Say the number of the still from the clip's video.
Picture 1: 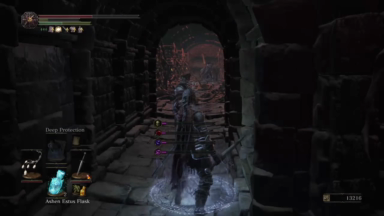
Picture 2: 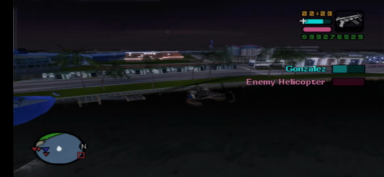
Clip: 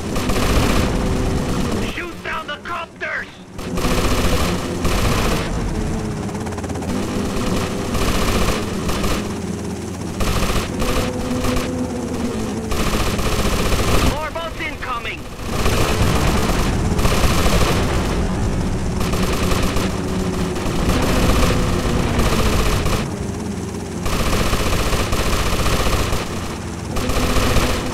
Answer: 2